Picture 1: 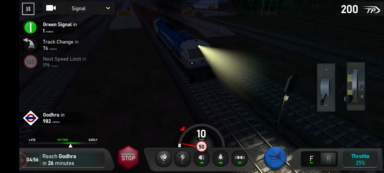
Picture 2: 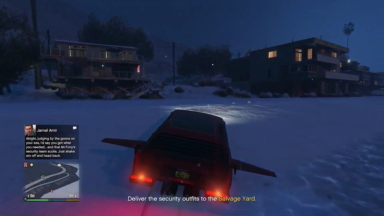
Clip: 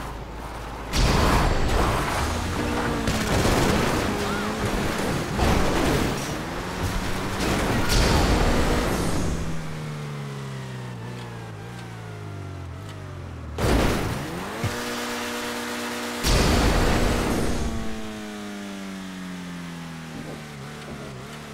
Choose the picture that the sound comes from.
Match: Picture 2